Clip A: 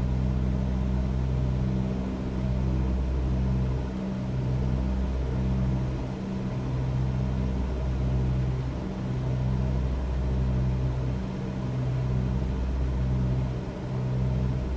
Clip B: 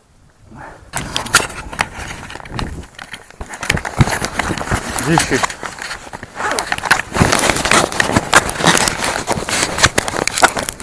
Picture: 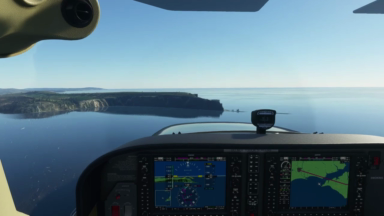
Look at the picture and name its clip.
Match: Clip A